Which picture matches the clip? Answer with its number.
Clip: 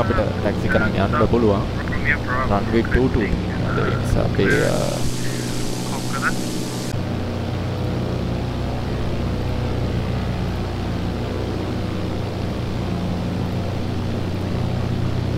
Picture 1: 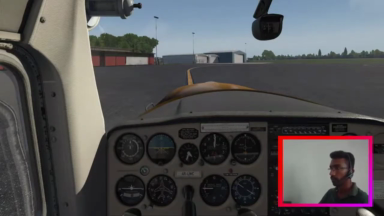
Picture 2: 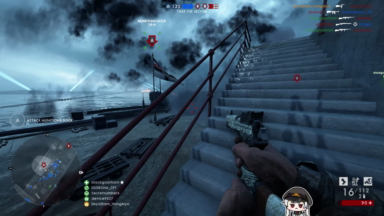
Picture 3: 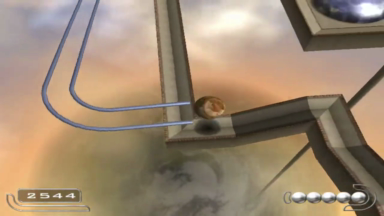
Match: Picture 1